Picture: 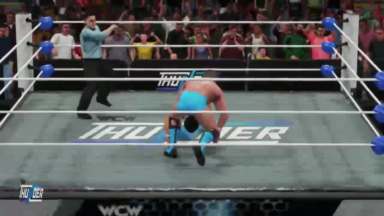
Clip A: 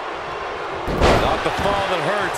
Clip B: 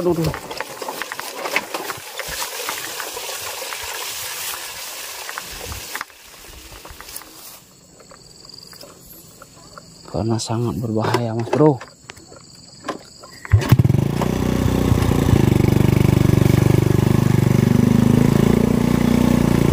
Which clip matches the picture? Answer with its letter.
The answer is A